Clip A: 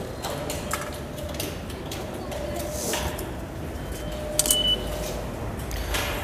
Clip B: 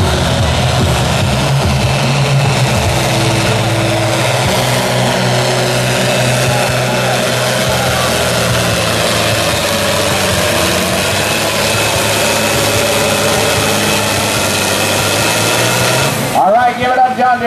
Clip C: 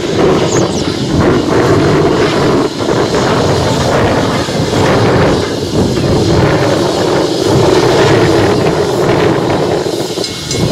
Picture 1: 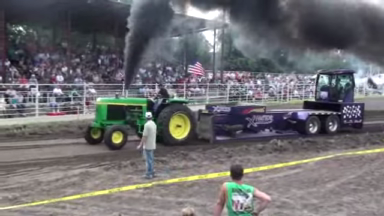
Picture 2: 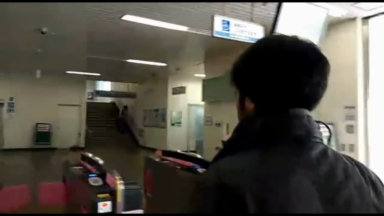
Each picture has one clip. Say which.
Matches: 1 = B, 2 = A